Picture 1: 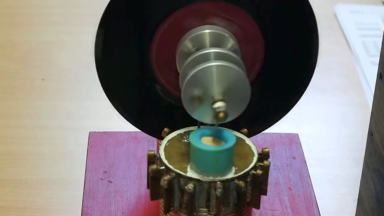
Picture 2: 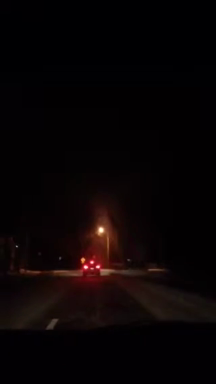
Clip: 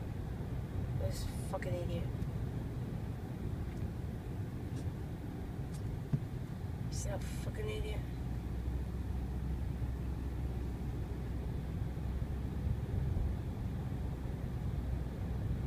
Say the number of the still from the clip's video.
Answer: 2